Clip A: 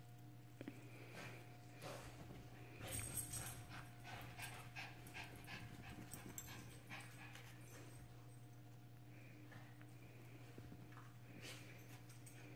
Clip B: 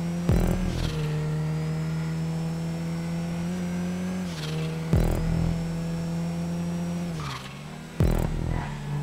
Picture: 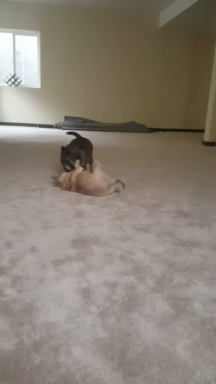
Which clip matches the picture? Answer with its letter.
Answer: A